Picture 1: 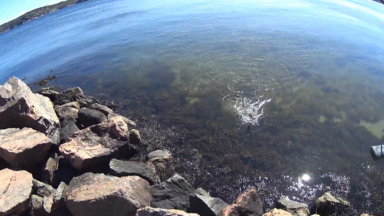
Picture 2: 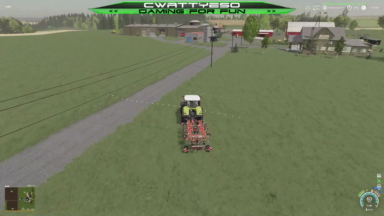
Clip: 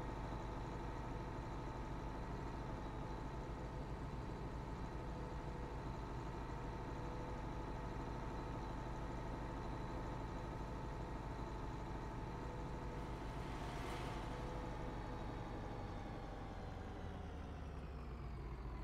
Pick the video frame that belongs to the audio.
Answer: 2